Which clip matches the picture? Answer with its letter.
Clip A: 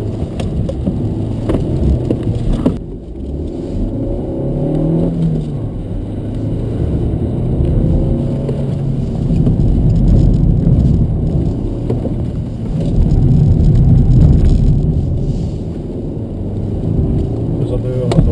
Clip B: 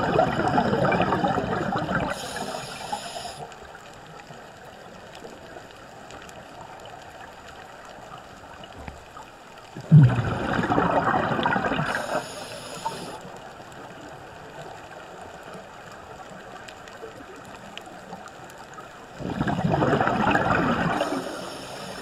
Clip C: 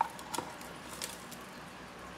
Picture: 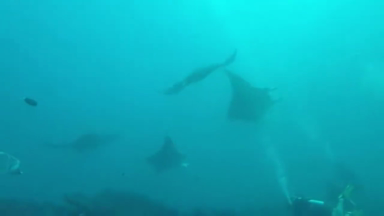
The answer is B